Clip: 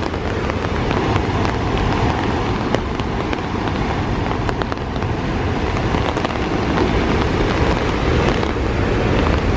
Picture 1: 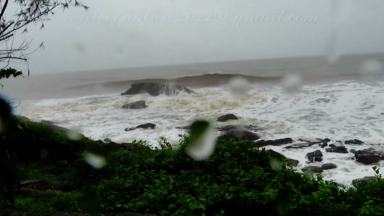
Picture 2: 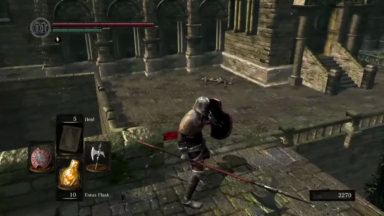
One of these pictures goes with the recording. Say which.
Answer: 1